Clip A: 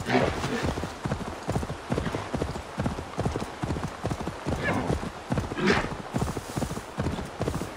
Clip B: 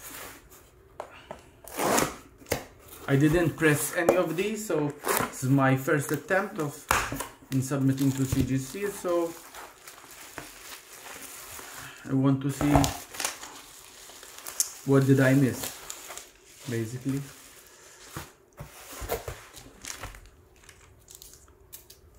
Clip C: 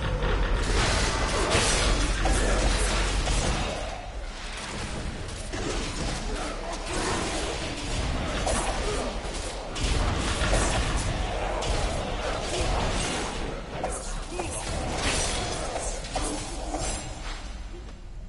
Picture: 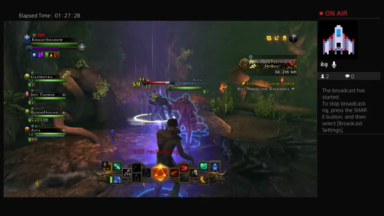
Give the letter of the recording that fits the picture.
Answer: C